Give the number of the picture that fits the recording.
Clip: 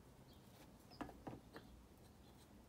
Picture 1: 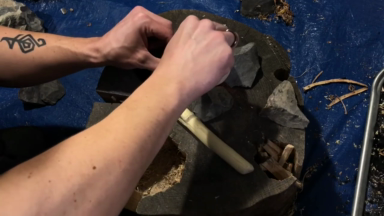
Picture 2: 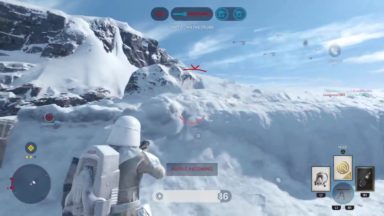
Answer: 1